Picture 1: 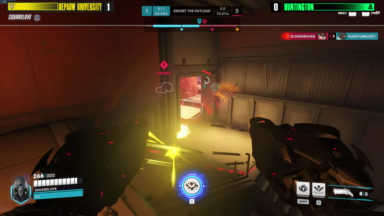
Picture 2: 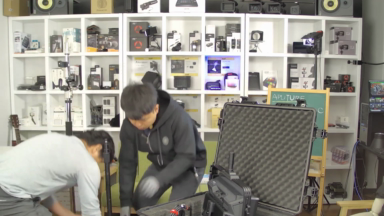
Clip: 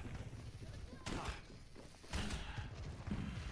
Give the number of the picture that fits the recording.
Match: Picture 1